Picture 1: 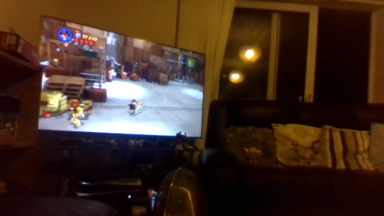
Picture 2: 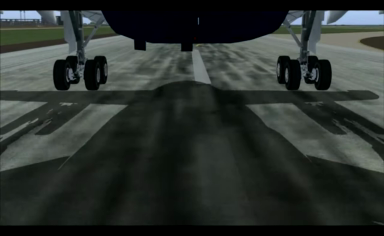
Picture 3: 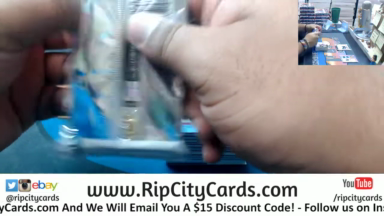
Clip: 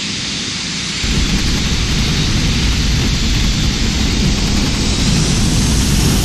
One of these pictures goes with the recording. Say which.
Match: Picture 2